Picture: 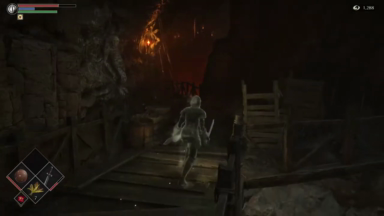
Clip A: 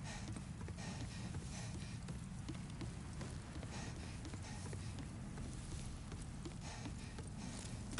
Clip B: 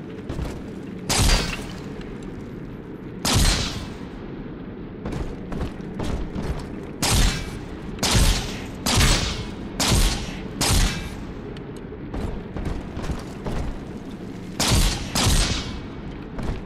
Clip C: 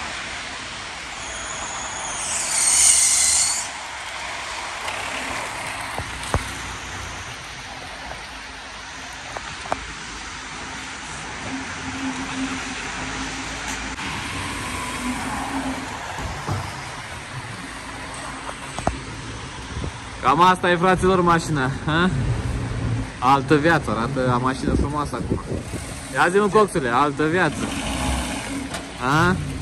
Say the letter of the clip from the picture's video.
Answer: A